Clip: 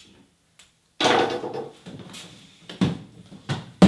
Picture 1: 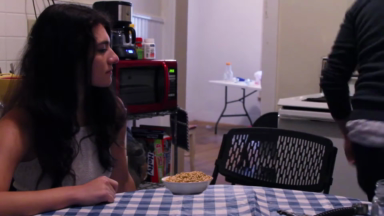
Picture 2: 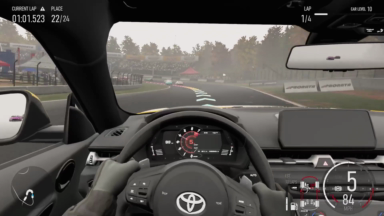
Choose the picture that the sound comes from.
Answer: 1